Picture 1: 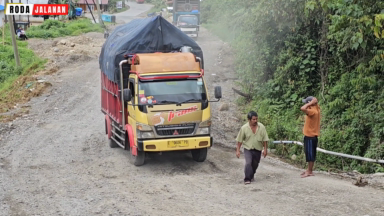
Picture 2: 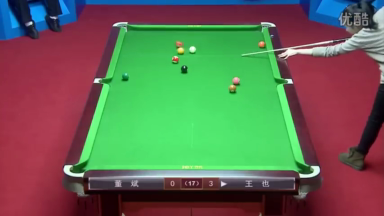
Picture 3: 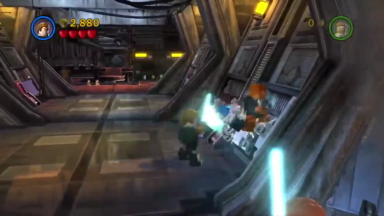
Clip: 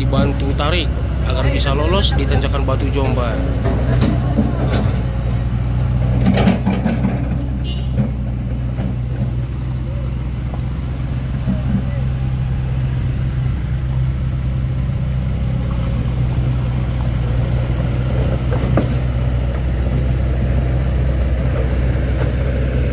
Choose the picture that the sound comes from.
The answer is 1